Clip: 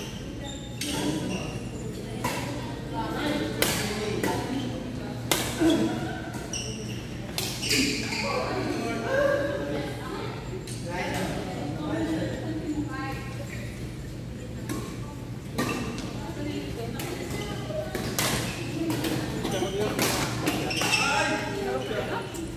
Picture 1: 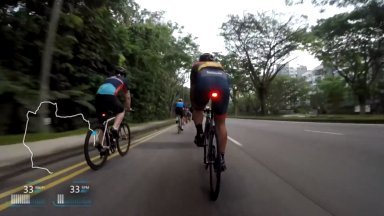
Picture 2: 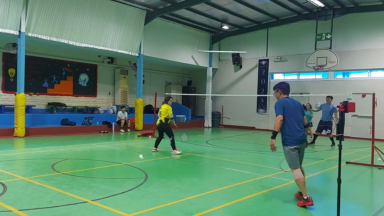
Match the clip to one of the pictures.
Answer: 2